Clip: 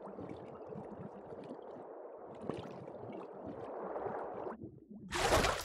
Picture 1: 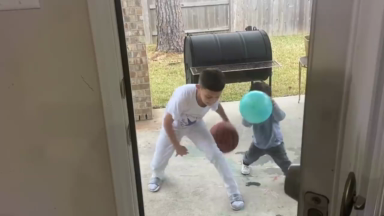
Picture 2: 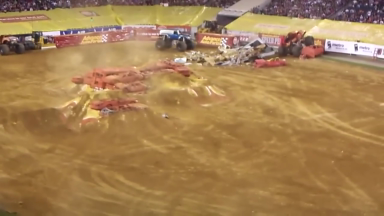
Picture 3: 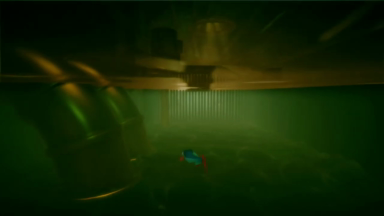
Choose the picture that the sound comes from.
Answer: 3